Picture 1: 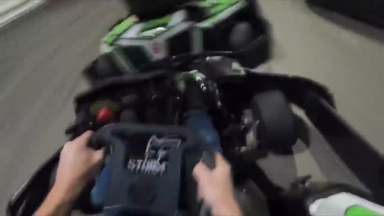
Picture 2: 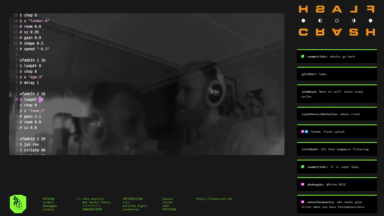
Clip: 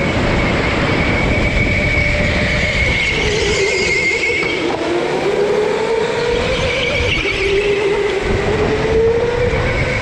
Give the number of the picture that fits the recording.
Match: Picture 1